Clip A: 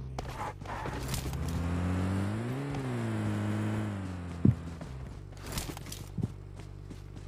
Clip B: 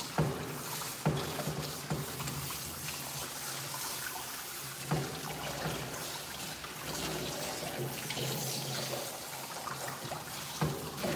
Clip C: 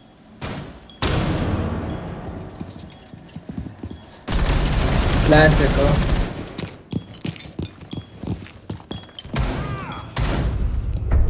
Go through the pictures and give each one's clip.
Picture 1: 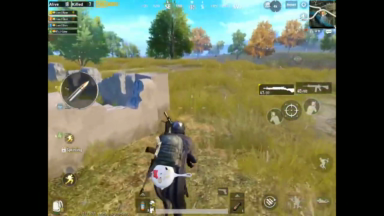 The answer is A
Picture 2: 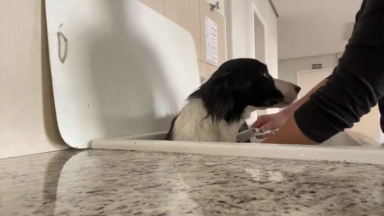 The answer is B